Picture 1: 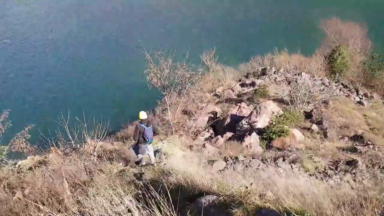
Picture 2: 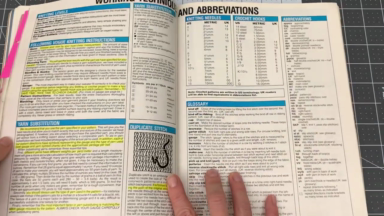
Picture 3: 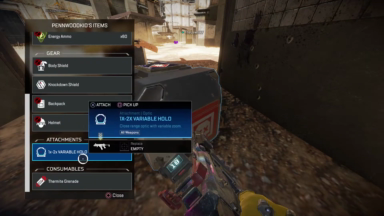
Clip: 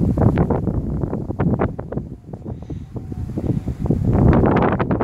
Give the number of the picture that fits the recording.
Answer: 1